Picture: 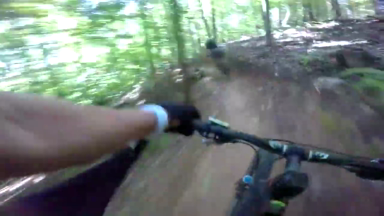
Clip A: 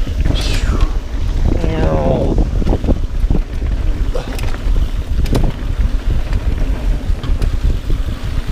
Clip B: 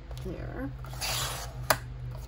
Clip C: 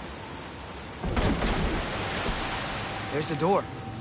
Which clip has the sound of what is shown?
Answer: A